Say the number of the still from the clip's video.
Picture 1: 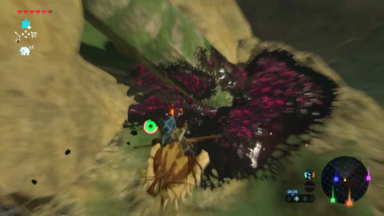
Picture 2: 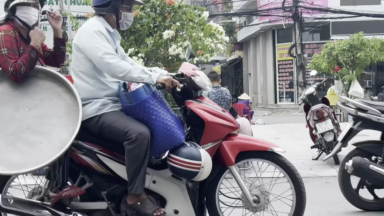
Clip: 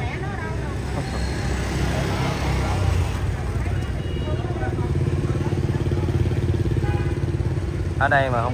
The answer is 2